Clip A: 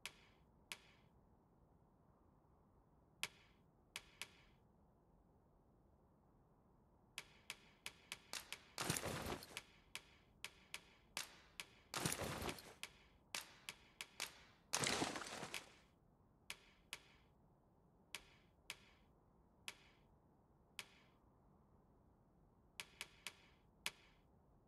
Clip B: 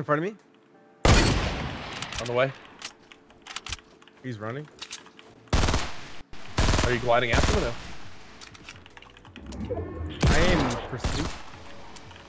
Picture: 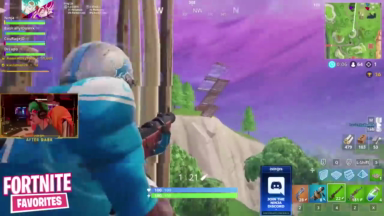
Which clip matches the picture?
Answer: B